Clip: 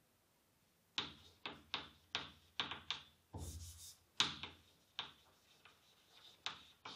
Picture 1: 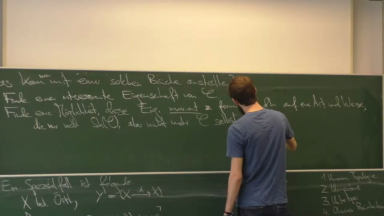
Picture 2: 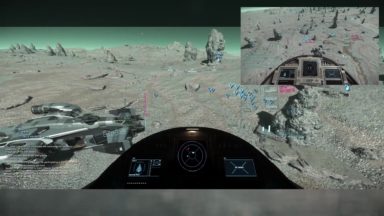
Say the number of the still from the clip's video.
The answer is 1